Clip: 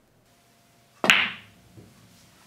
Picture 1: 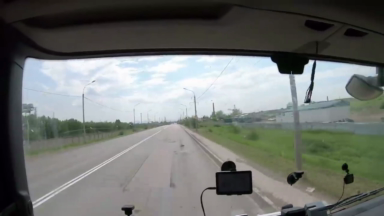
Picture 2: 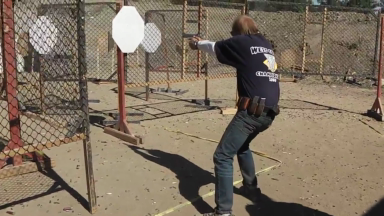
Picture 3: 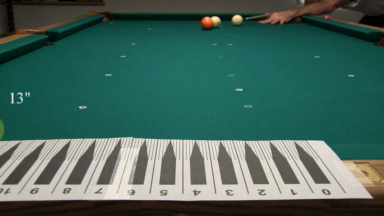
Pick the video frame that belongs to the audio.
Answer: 3